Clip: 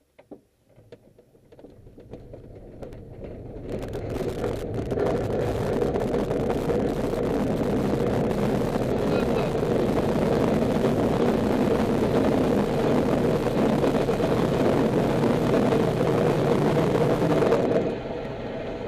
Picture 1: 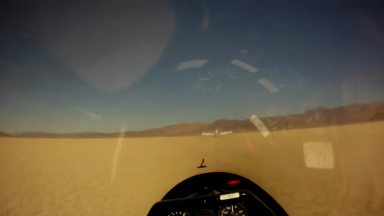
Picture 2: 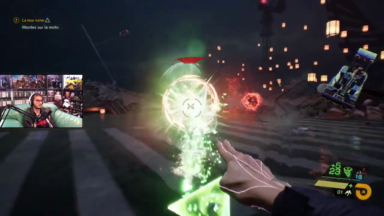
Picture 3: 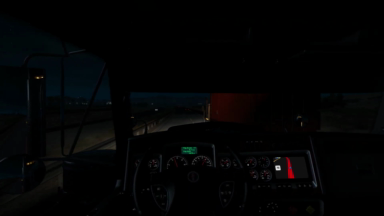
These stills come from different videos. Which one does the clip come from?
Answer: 1